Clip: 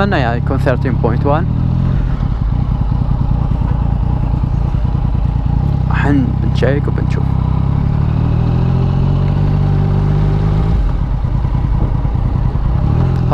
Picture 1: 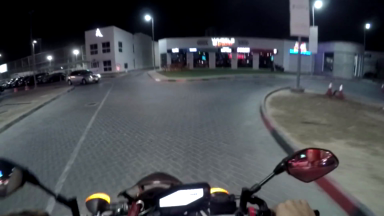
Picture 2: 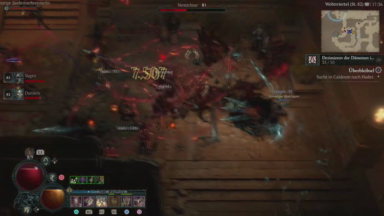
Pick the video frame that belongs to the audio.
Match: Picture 1